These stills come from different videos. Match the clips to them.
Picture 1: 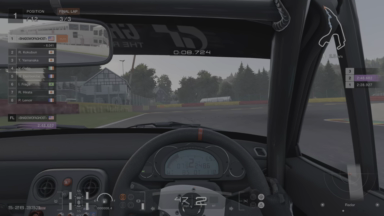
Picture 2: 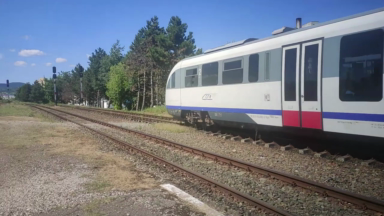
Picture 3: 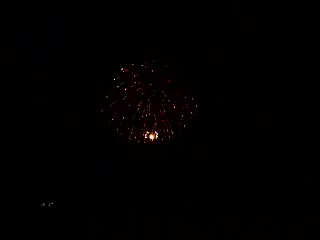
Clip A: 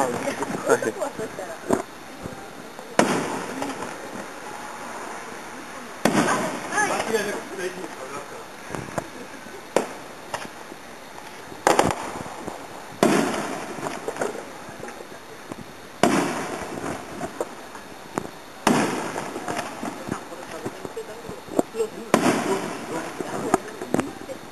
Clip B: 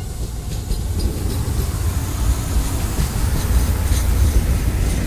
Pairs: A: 3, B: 2